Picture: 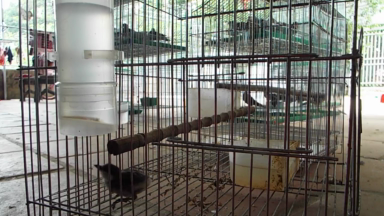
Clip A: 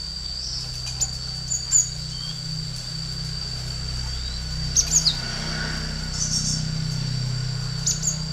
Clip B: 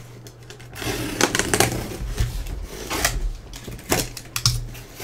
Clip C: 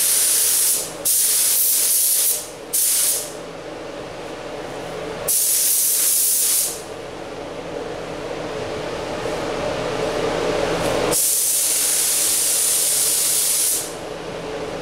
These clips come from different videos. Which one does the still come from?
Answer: A